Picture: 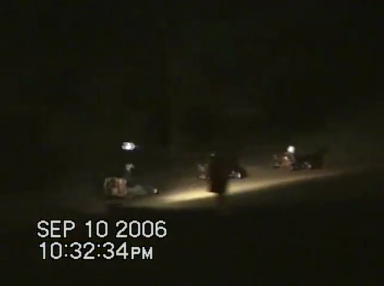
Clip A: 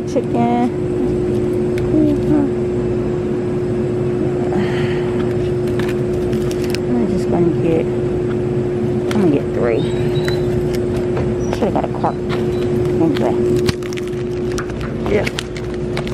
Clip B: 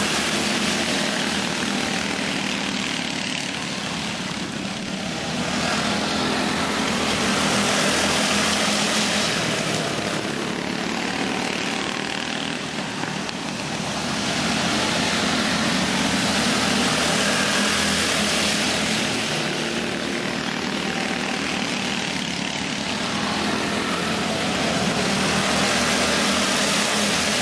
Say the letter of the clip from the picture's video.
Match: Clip B